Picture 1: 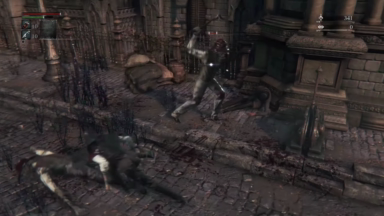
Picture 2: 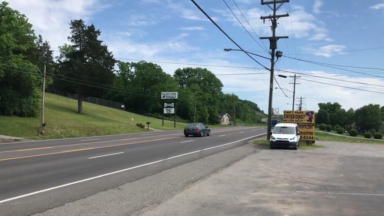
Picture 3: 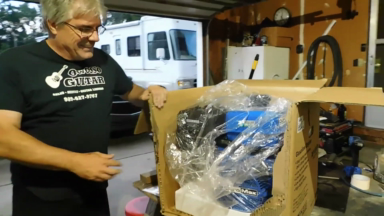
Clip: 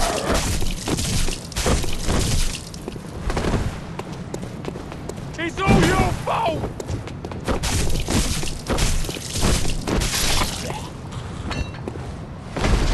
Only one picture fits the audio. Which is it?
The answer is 1